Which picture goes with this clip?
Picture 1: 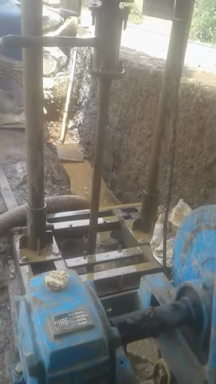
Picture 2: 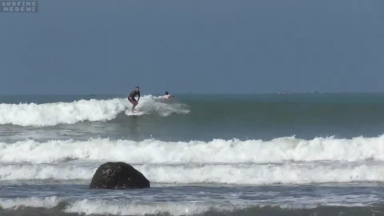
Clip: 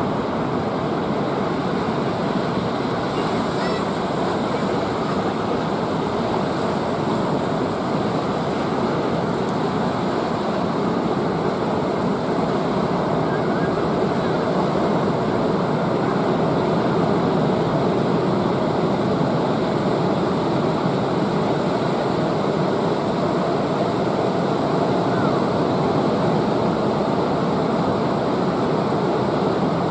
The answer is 2